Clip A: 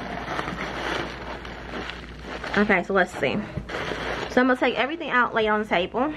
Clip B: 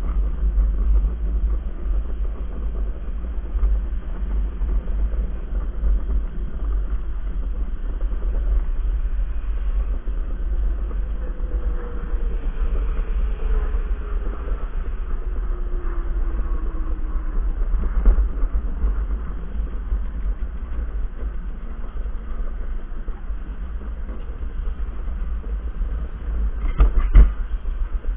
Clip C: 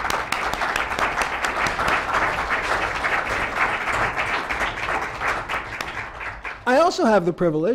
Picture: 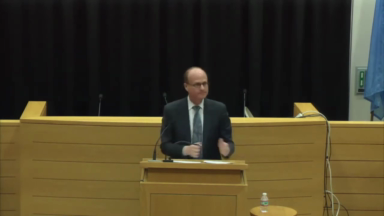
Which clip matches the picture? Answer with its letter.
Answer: C